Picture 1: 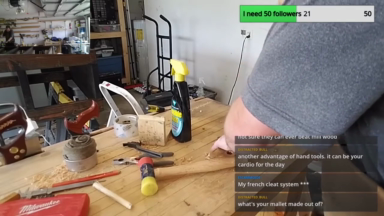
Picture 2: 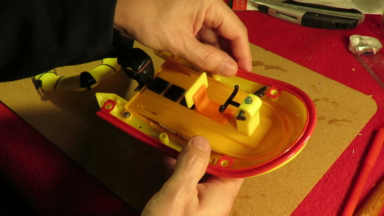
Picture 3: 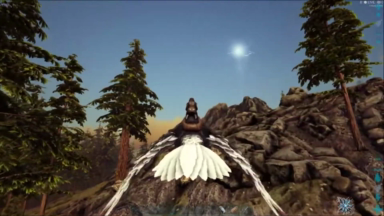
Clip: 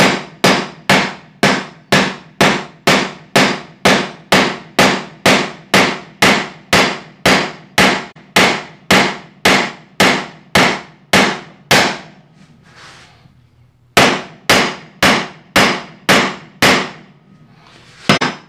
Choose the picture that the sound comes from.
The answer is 1